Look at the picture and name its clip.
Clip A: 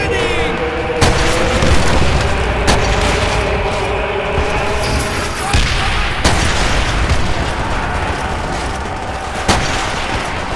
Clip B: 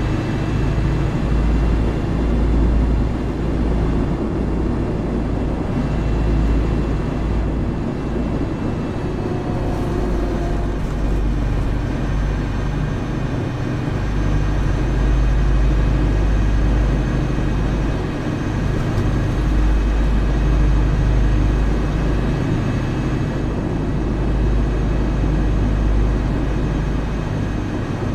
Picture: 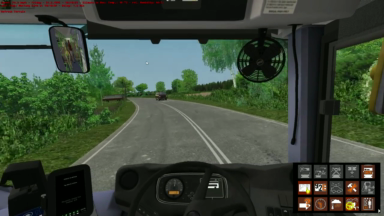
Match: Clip B